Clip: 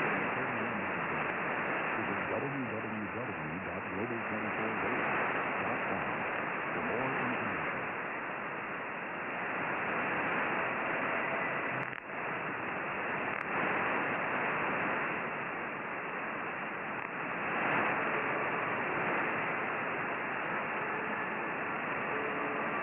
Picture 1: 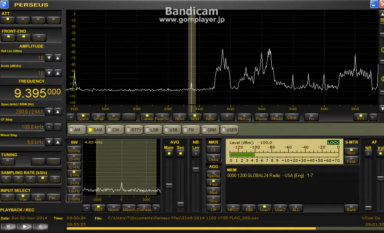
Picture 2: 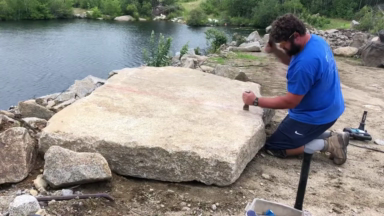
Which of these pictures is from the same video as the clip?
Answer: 1